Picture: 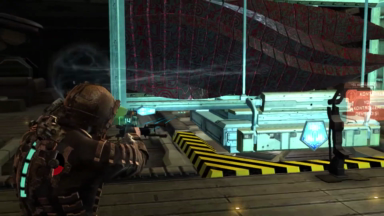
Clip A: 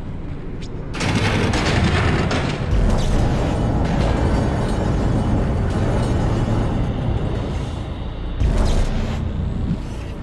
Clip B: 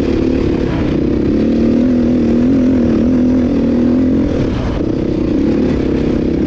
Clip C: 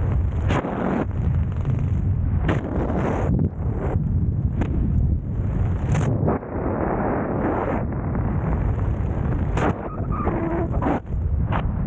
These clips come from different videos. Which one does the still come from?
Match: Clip A